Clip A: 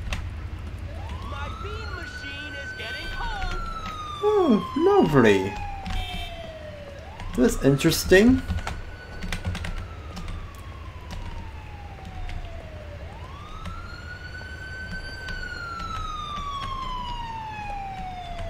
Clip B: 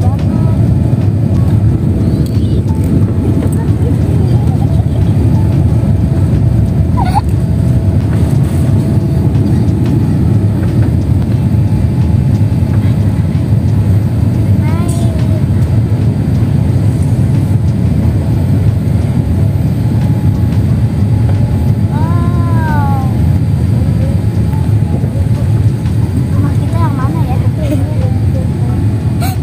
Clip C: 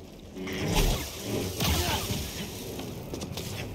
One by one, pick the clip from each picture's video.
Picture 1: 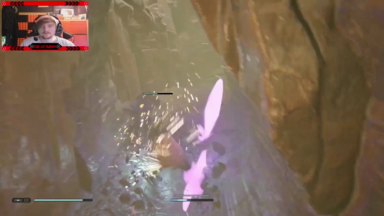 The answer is C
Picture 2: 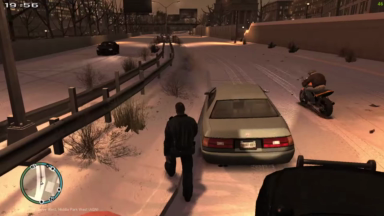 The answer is A